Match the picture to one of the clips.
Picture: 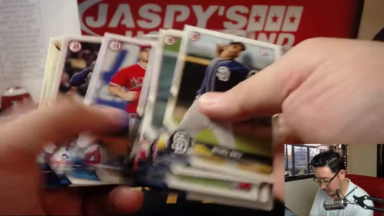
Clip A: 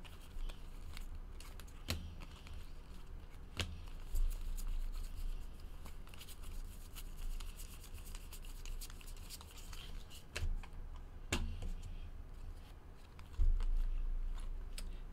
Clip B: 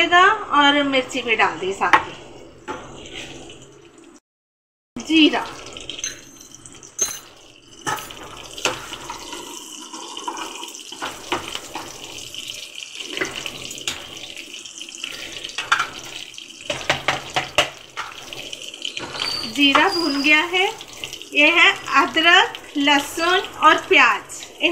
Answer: A